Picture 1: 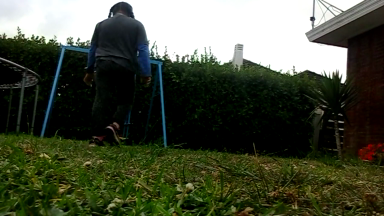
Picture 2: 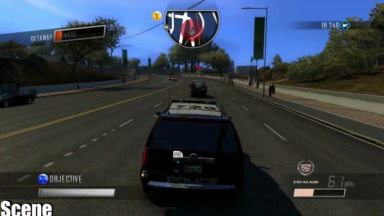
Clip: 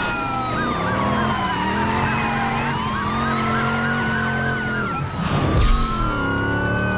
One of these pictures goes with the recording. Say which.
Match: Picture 2